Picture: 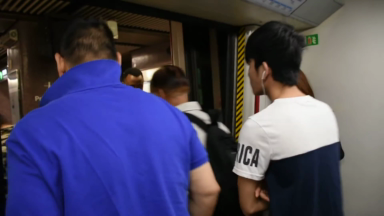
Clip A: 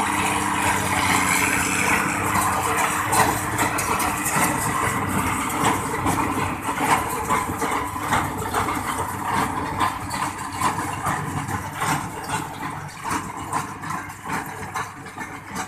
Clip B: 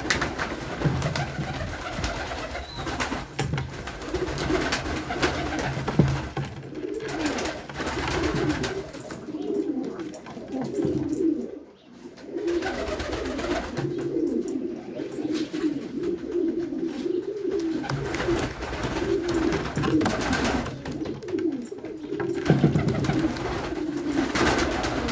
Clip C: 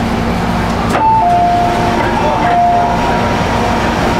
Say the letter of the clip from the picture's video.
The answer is C